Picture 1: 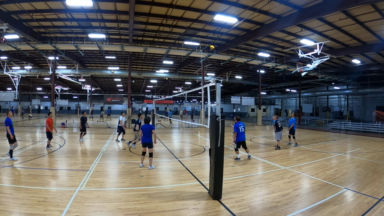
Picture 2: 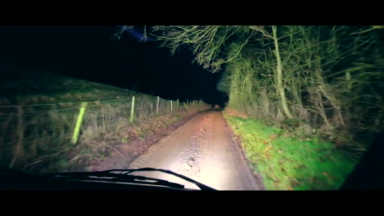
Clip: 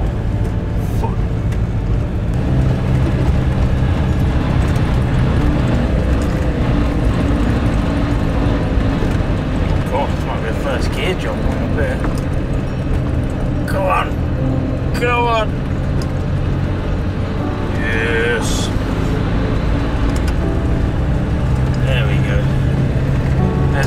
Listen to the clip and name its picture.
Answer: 2